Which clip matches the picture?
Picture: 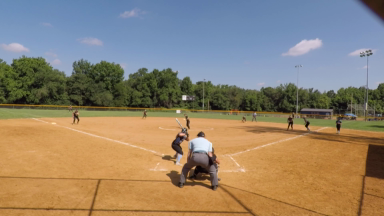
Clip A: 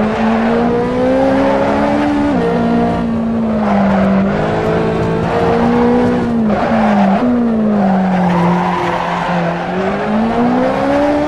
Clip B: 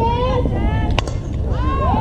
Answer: B